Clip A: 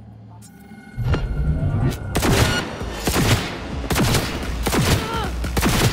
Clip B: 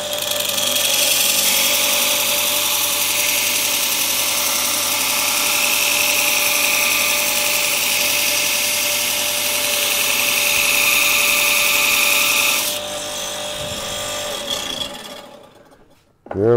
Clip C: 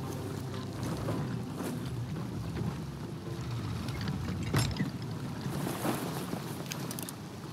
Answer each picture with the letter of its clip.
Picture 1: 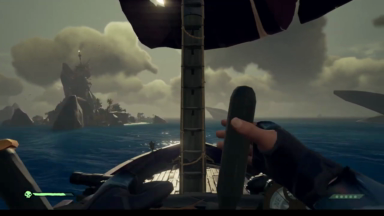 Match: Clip C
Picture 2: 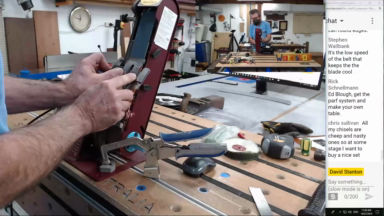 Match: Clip B